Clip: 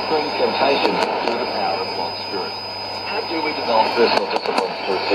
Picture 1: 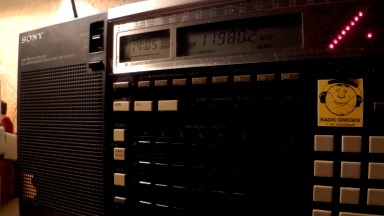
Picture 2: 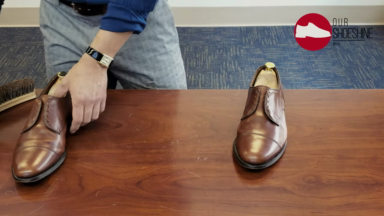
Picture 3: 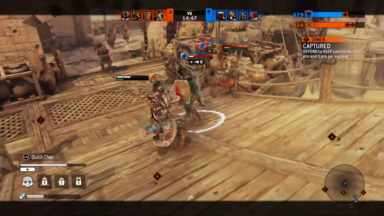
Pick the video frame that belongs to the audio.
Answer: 1